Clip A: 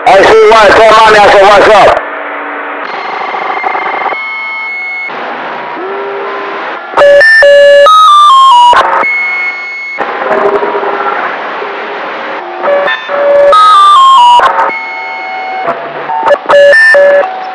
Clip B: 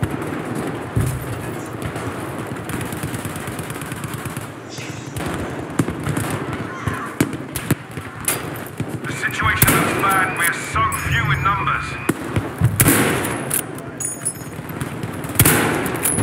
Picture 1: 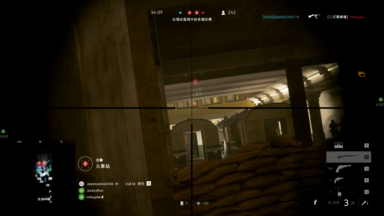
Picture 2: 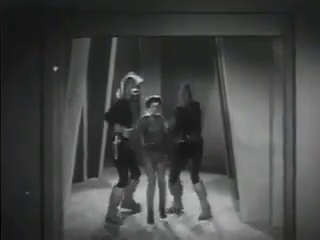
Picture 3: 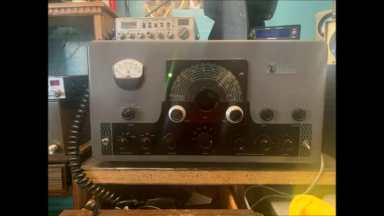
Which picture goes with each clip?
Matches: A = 3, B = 1